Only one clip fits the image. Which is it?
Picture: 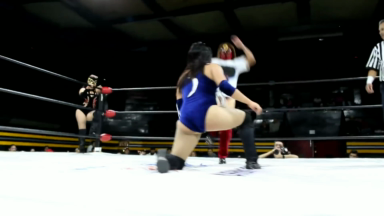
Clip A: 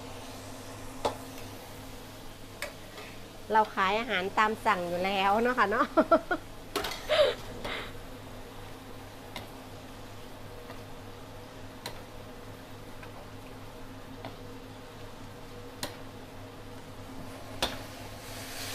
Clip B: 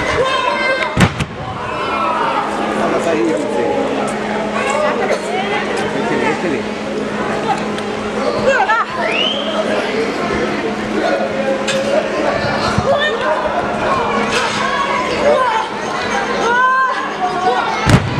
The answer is B